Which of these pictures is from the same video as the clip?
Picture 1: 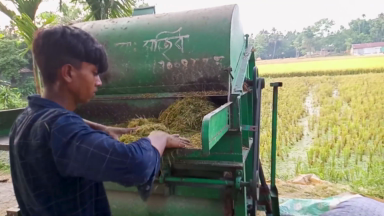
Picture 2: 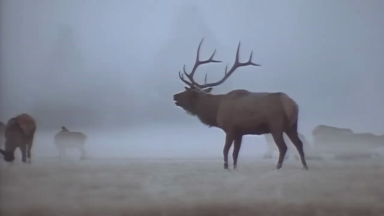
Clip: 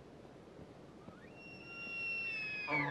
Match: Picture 2